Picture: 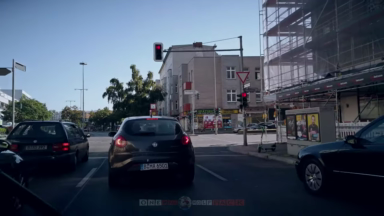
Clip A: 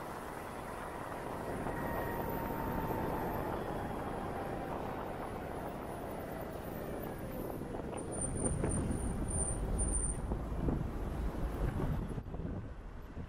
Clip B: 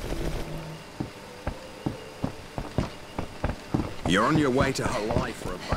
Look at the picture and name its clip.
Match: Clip A